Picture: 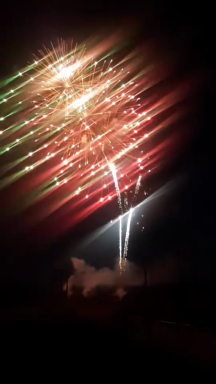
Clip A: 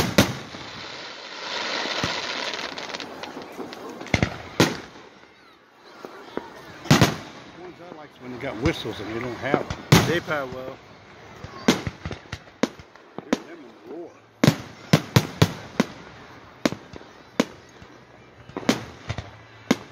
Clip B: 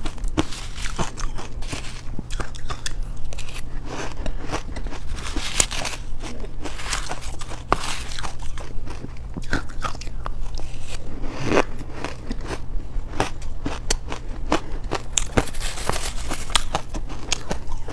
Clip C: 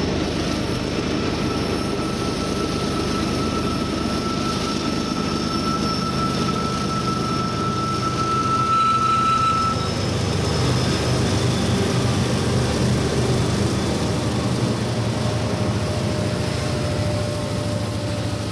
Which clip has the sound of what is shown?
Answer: A